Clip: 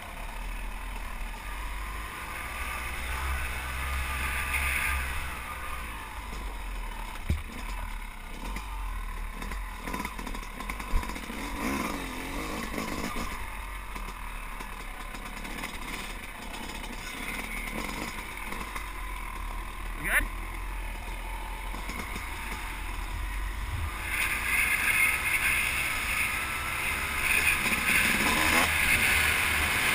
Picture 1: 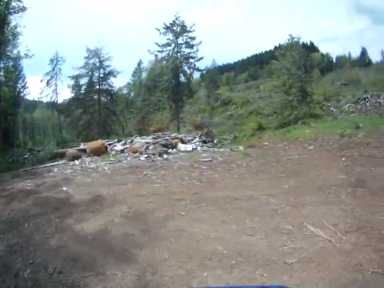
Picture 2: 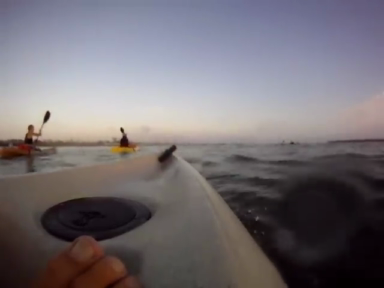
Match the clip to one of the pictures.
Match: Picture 1